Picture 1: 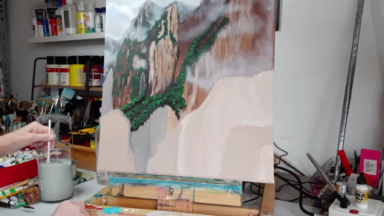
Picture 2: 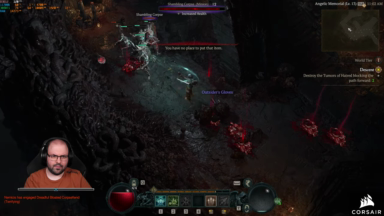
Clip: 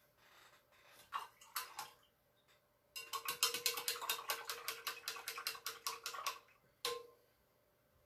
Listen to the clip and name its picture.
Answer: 1